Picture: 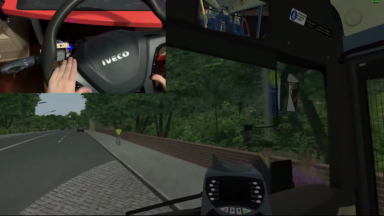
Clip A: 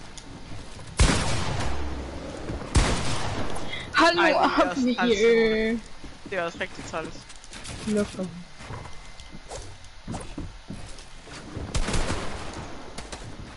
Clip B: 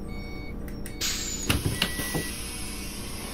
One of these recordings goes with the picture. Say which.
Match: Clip B